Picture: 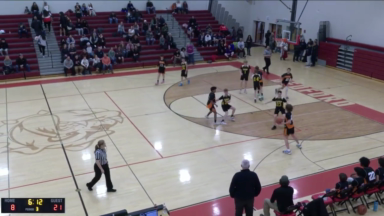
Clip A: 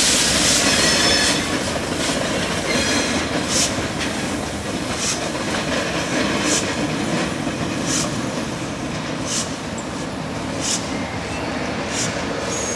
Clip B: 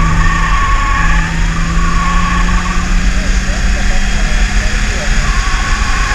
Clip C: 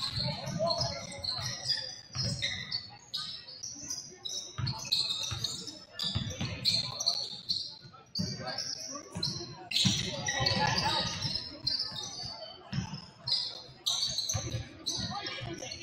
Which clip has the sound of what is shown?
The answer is C